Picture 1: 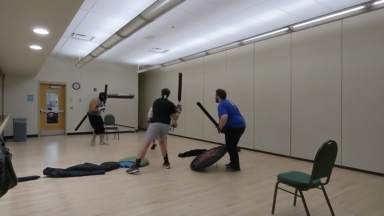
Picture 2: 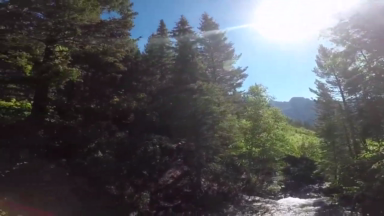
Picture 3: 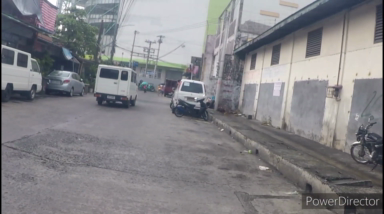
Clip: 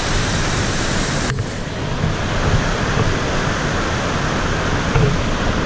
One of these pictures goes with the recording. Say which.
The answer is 2